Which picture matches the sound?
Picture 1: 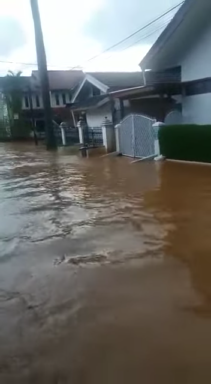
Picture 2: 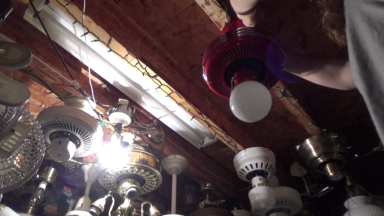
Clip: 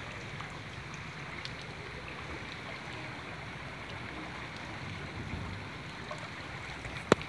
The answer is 1